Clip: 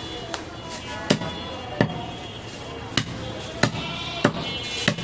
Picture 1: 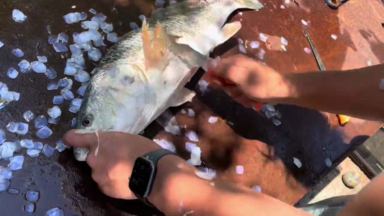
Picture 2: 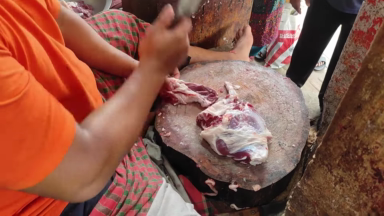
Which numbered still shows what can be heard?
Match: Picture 2